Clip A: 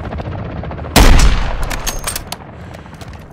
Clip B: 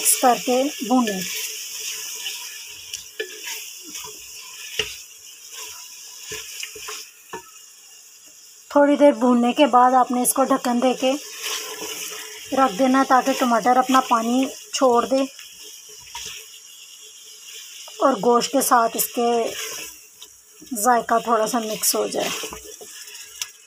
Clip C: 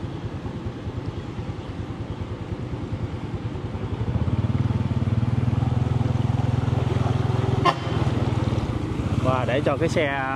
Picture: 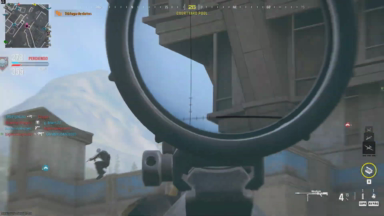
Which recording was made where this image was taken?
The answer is A